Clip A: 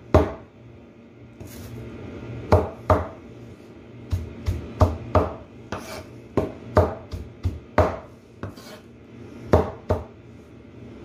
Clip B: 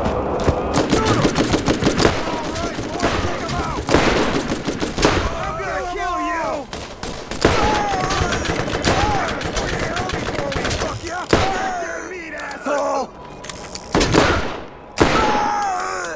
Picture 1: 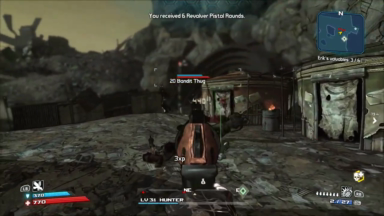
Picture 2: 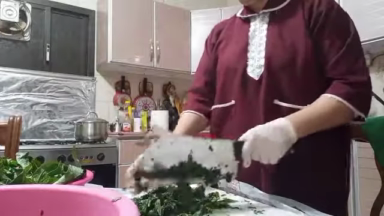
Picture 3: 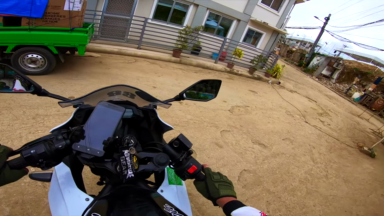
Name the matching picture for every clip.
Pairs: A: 2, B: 1